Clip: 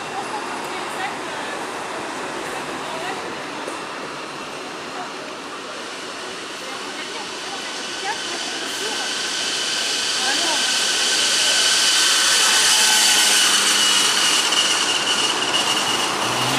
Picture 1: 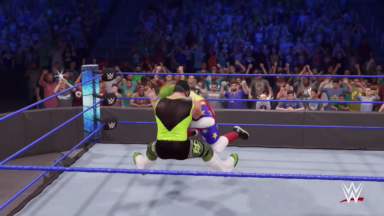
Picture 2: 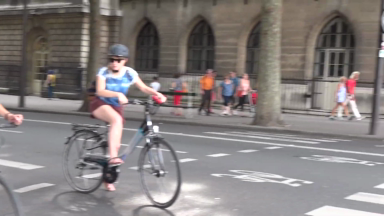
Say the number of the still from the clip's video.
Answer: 2